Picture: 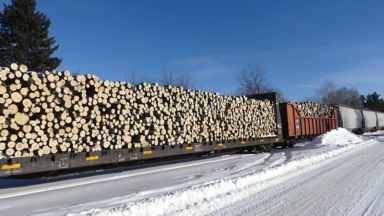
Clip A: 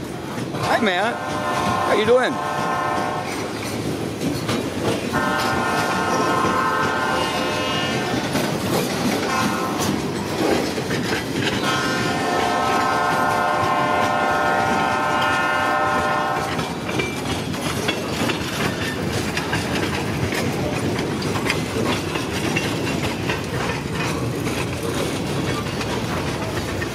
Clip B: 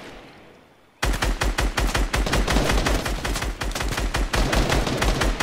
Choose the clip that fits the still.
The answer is A